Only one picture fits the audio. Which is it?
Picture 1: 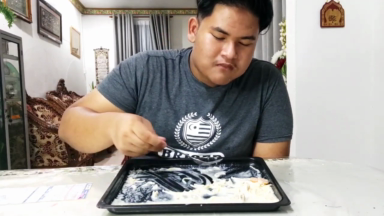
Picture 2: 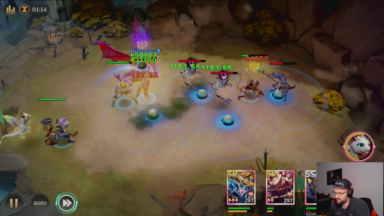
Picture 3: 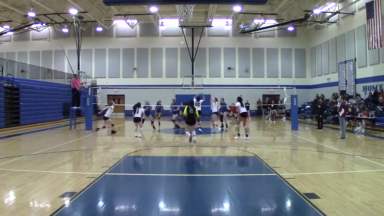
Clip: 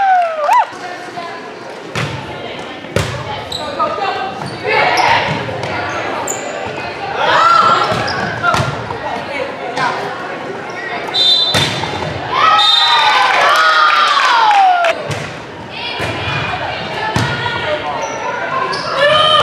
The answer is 3